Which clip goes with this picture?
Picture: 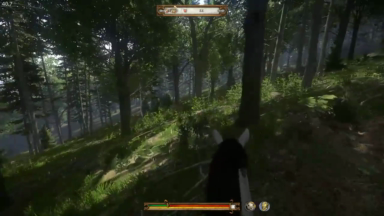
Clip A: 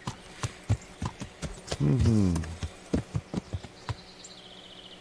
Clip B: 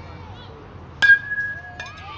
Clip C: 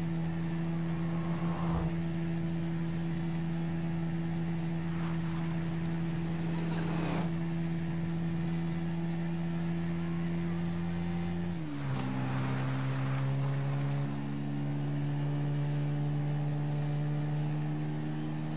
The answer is A